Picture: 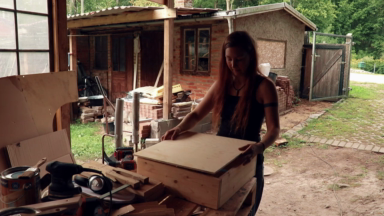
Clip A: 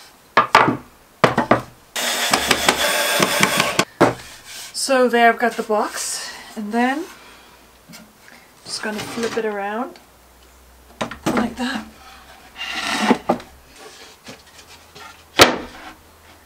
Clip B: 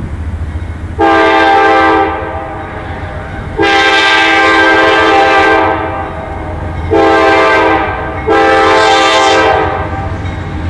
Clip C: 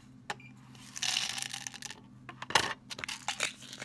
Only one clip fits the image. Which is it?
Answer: A